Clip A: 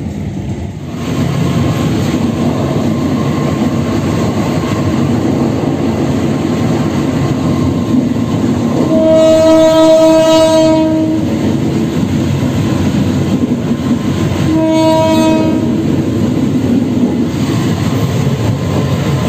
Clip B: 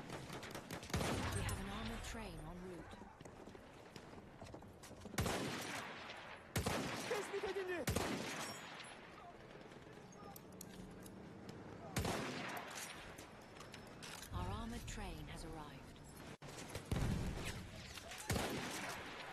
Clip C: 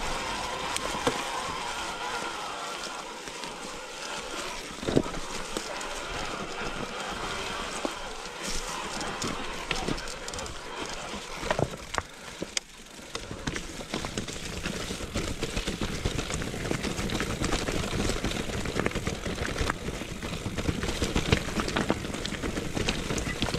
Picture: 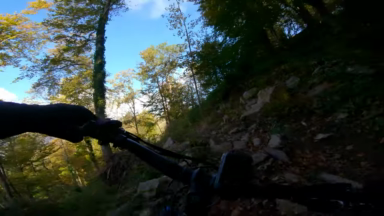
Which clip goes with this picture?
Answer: C